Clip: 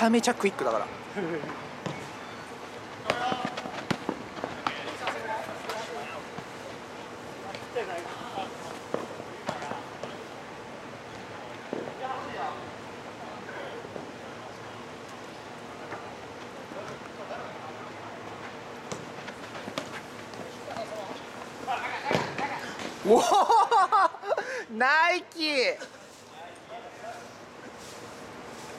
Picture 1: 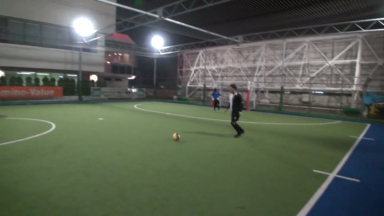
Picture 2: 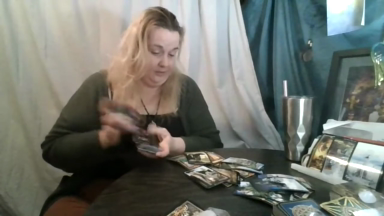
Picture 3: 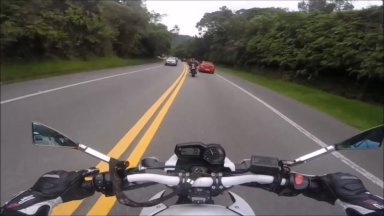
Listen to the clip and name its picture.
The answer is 1